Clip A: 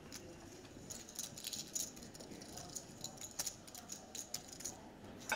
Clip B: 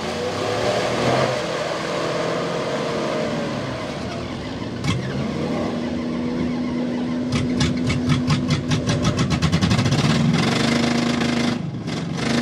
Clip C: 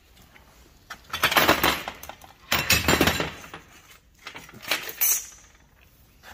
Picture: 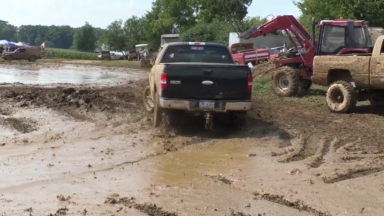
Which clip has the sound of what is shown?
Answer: B